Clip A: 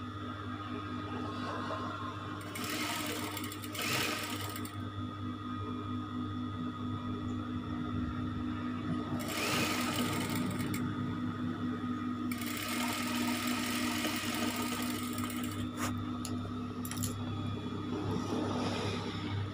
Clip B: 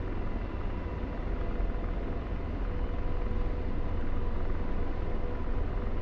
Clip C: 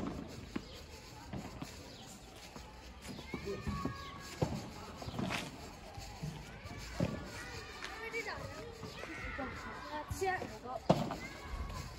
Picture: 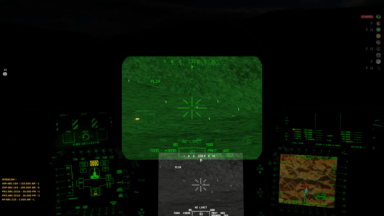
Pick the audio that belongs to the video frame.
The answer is B